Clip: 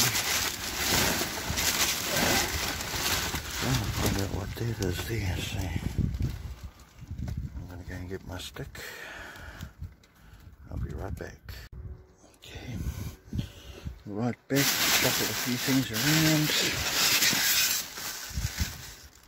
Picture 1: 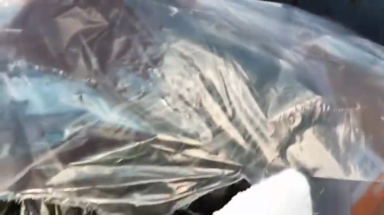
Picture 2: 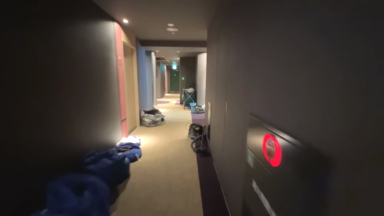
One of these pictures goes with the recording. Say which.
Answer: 1